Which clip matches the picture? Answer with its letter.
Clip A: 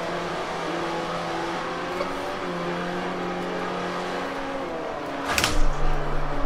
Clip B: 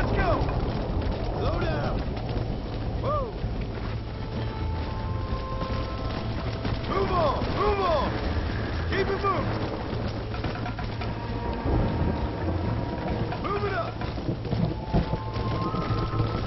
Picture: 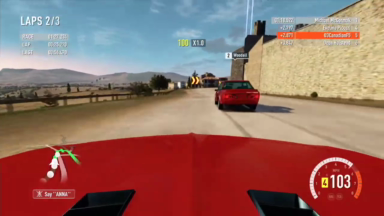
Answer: A